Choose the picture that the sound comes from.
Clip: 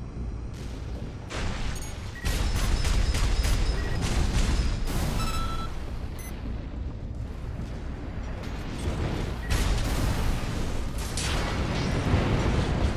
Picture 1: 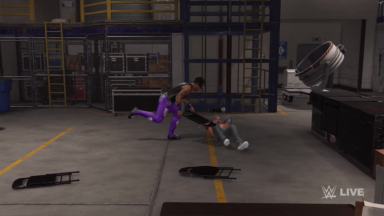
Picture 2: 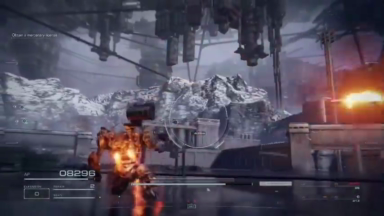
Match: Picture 2